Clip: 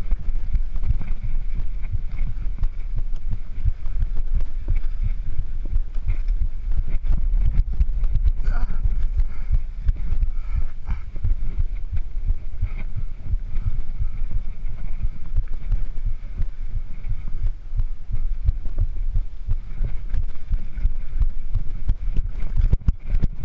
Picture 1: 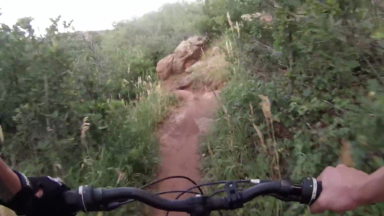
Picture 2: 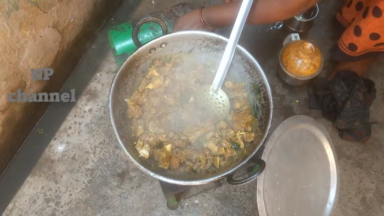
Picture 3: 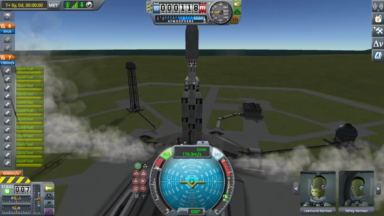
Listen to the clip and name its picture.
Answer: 1